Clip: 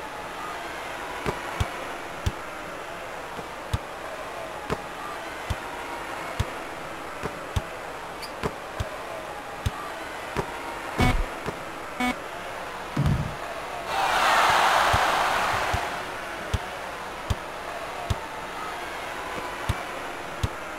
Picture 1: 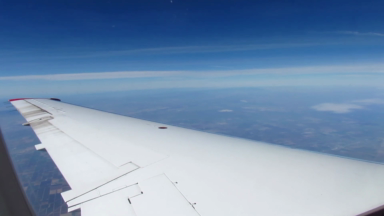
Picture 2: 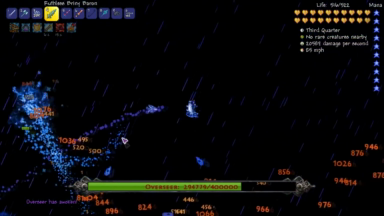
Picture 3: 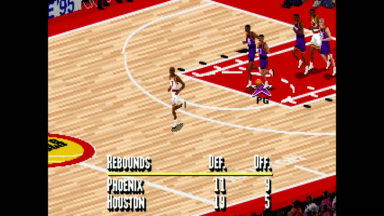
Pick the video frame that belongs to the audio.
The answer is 3